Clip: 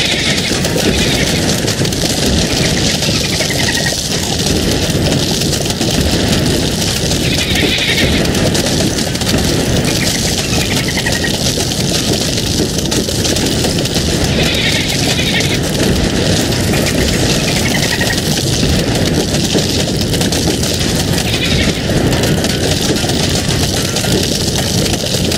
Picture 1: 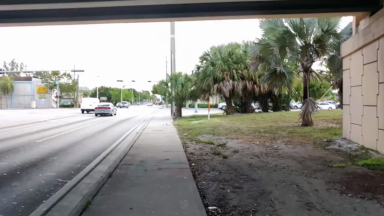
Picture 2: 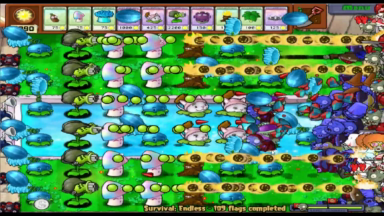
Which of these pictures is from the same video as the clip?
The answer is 2